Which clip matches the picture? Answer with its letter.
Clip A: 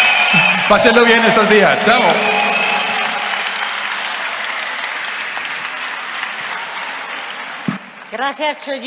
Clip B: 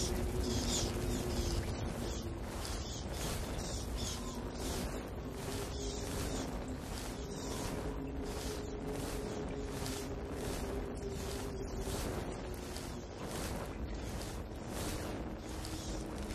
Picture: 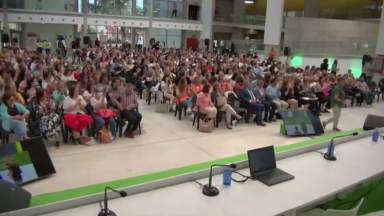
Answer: A